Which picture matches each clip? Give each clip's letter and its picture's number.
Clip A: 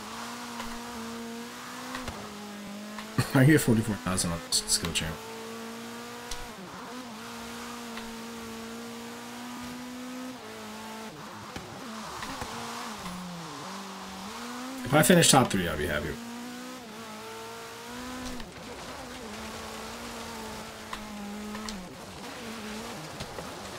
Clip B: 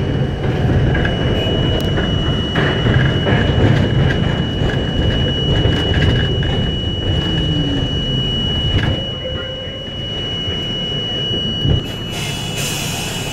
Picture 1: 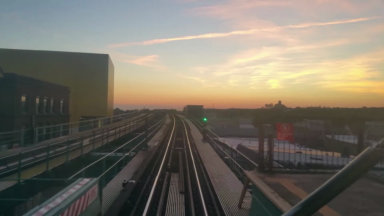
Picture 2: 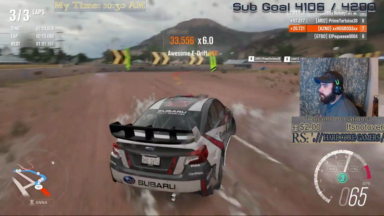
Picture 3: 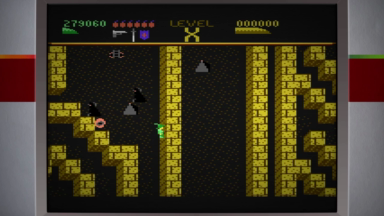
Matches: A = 2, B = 1